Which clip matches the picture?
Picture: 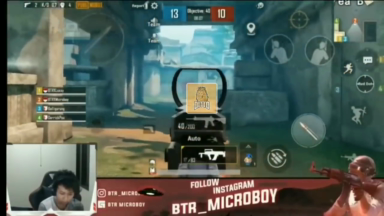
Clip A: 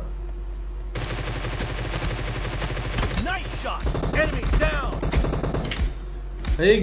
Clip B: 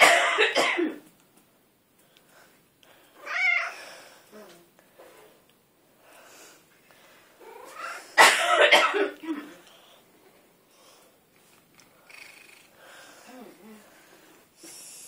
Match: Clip A